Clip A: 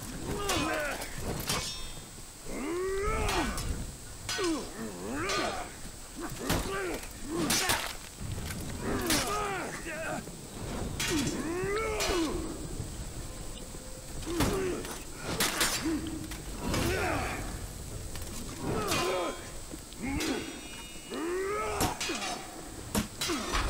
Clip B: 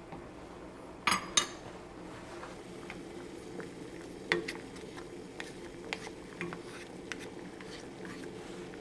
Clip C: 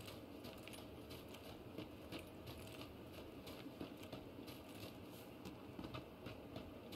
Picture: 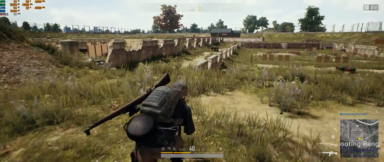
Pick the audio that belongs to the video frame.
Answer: C